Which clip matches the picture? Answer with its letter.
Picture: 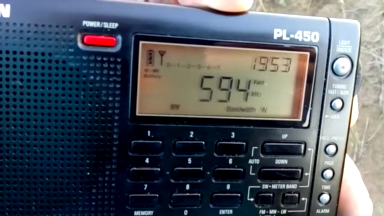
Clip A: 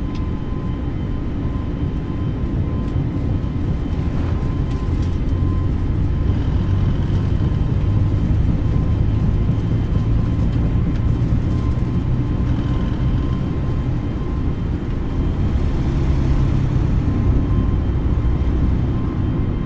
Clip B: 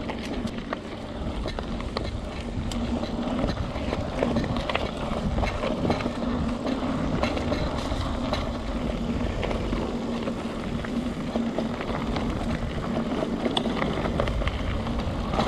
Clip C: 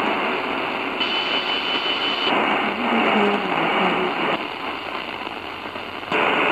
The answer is C